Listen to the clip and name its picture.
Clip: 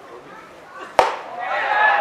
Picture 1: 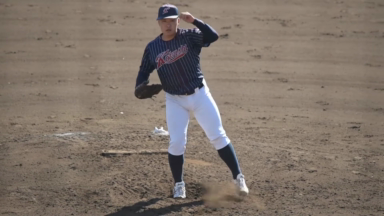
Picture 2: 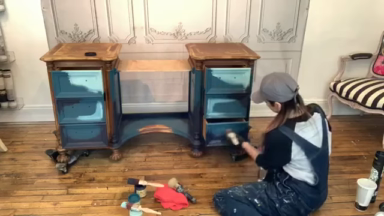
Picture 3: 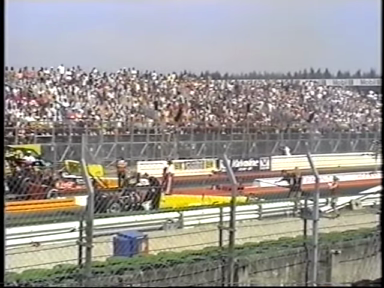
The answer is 1